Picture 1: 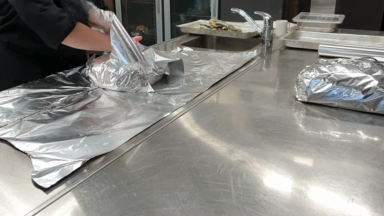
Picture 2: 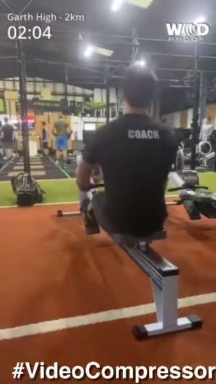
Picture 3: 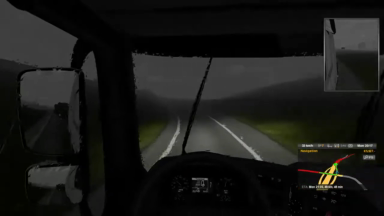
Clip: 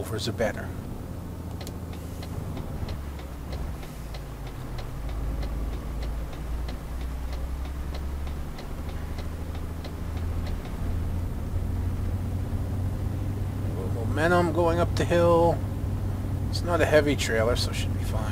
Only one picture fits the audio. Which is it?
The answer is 3